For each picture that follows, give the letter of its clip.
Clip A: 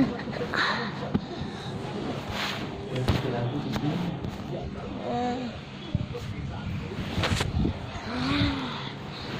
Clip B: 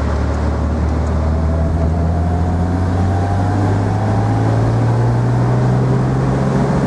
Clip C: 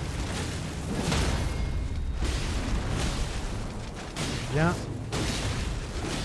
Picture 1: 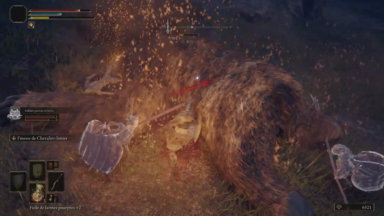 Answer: C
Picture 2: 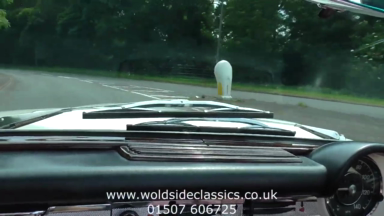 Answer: B